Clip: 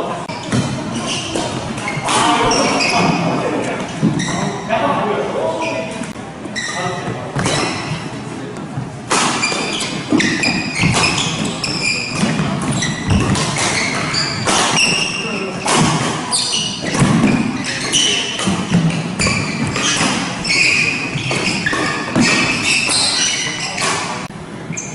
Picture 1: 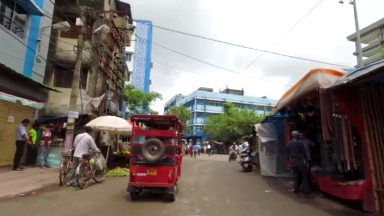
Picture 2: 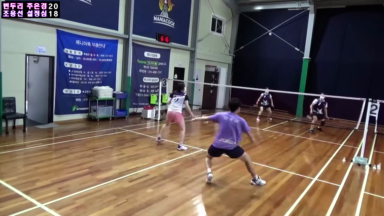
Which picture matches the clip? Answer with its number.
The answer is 2